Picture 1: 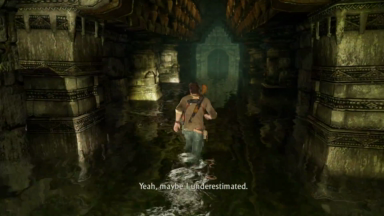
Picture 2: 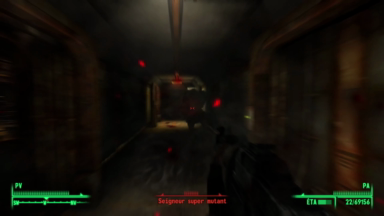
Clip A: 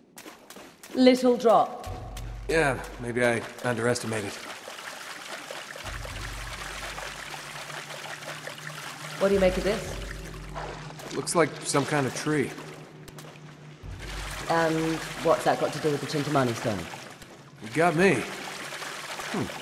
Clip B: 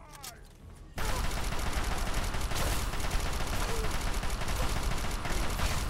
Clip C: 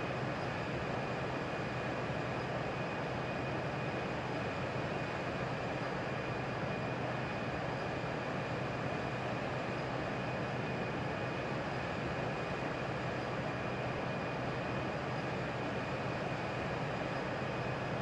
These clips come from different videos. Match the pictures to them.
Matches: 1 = A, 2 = B